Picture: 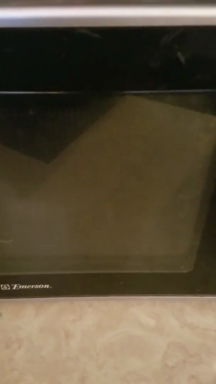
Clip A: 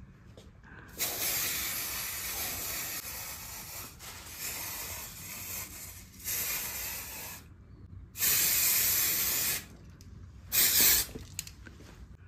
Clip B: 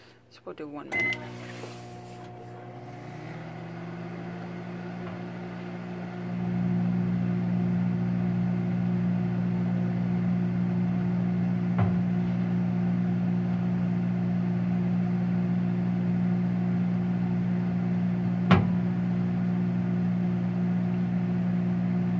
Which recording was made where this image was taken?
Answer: B